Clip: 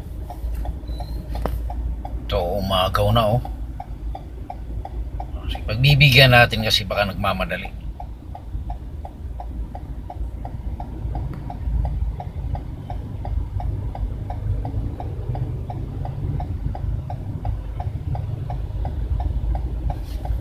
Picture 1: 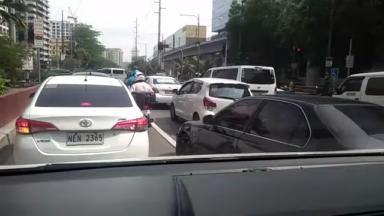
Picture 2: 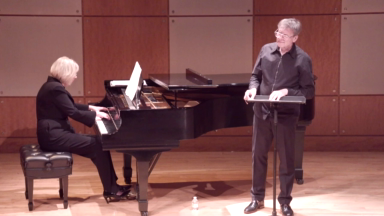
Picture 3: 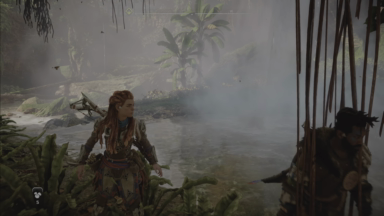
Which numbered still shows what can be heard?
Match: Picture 1